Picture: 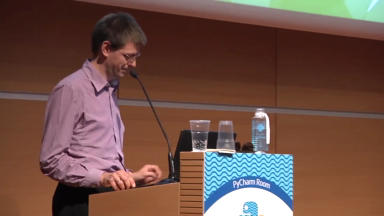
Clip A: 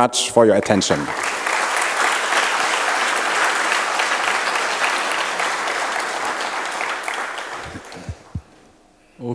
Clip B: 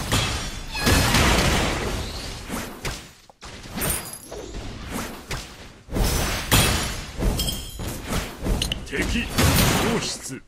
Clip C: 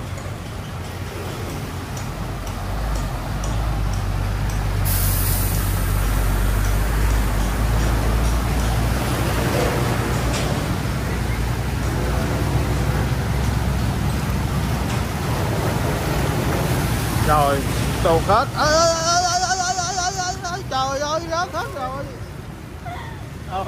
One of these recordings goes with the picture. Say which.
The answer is A